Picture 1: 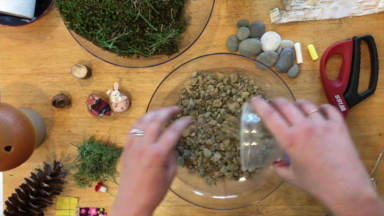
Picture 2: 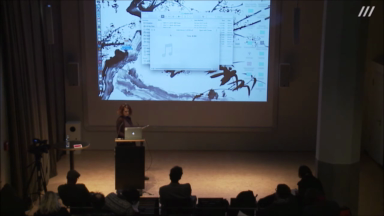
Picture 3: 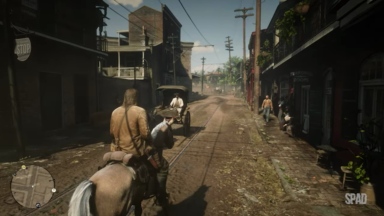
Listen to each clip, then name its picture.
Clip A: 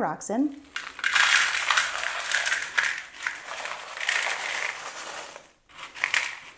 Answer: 1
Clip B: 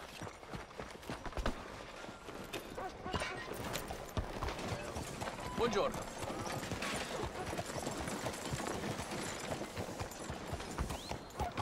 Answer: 3